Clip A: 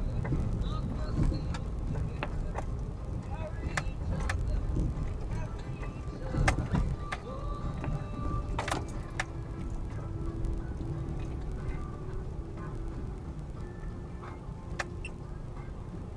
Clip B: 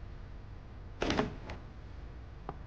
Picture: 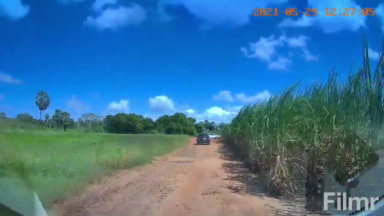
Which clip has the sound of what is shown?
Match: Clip A